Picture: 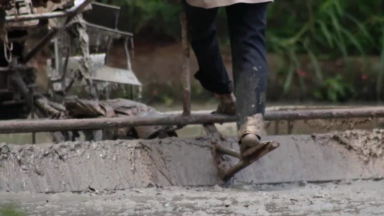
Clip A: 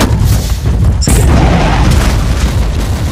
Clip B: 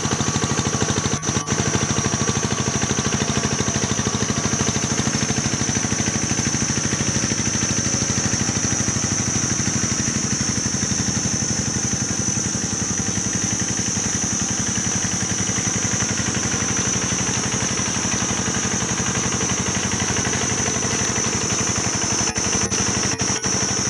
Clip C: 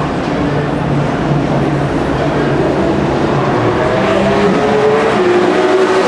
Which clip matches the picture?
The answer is B